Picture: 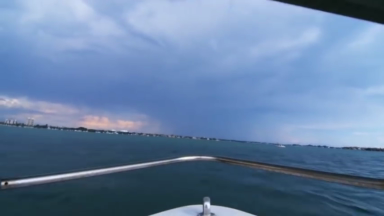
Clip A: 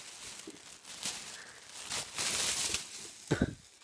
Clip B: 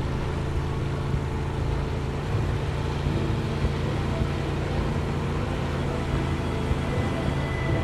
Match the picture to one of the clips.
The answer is B